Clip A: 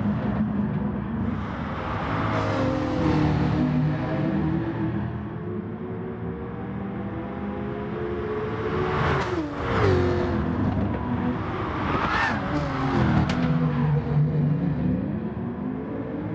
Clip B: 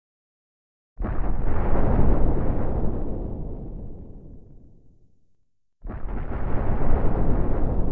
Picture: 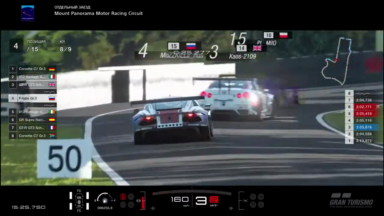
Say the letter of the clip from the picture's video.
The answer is A